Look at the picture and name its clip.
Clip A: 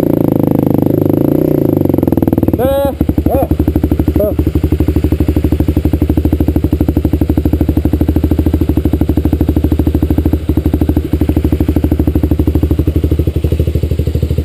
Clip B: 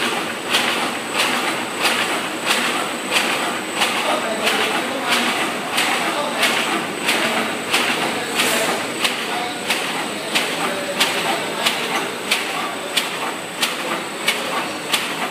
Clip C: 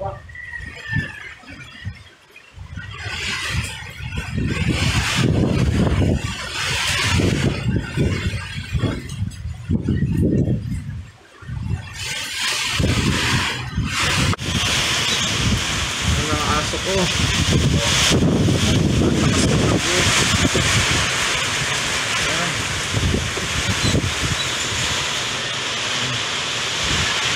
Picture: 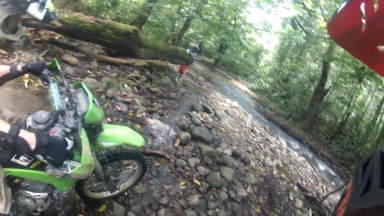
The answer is A